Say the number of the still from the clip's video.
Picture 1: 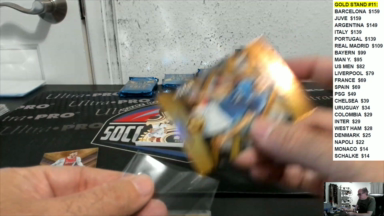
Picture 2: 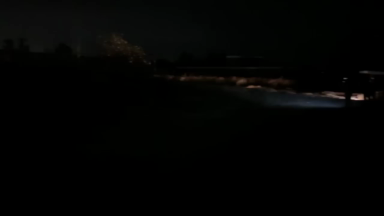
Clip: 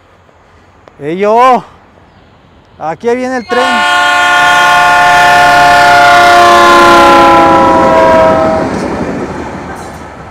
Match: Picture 2